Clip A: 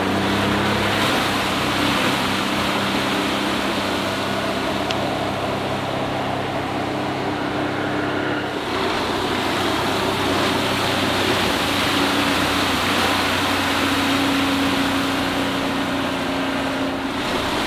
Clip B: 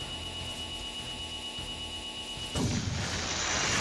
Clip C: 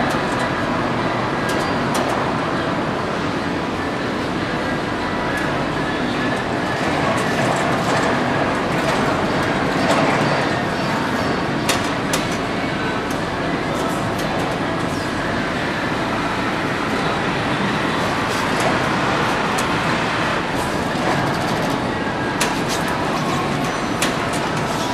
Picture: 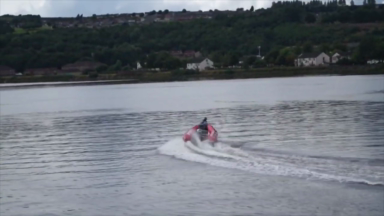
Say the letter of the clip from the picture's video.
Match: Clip A